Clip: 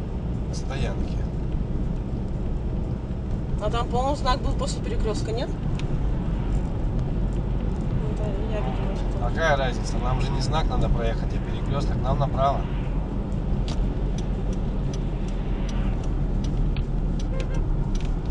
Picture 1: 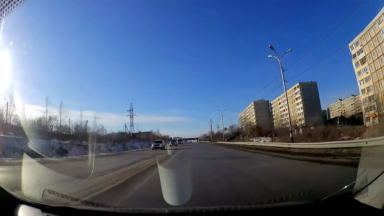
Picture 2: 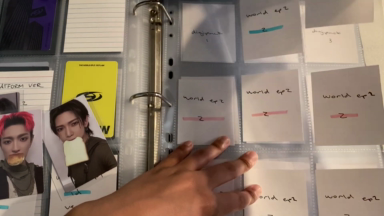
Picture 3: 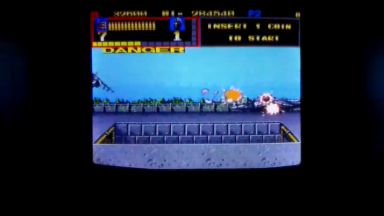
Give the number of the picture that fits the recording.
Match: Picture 1